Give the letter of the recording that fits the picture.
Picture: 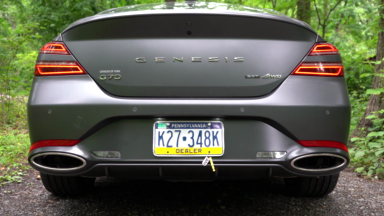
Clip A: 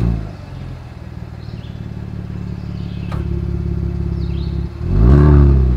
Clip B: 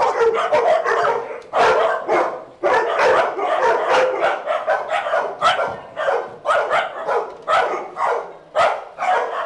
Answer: A